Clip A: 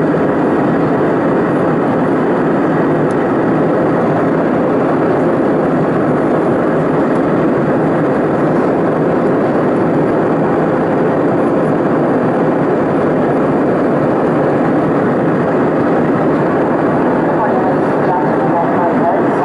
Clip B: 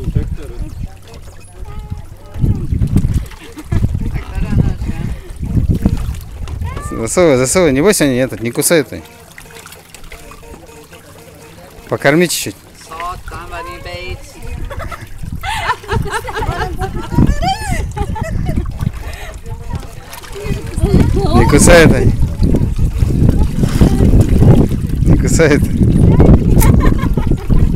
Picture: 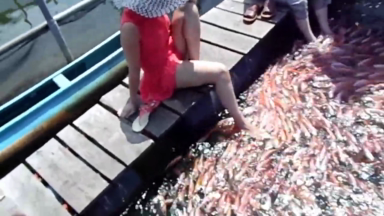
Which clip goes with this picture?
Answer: B